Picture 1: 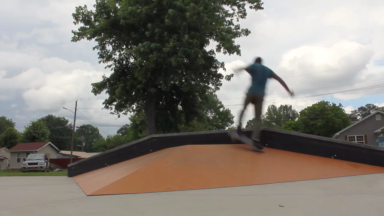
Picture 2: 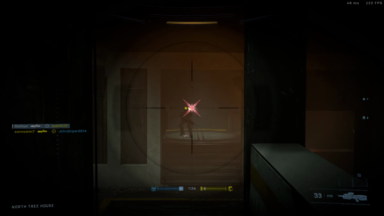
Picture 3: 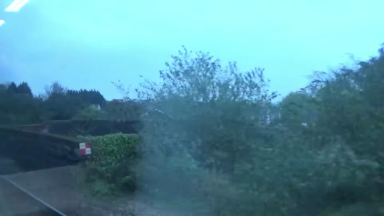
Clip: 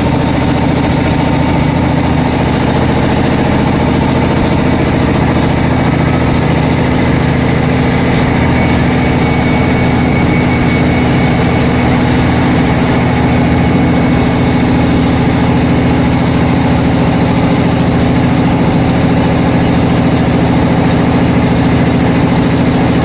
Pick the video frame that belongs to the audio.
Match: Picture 3